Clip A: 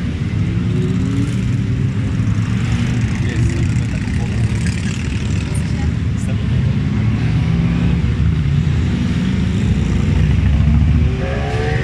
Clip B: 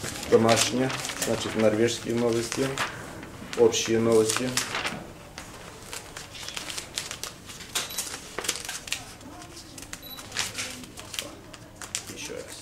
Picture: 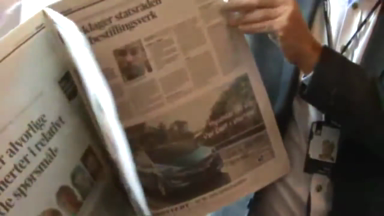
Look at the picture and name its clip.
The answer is B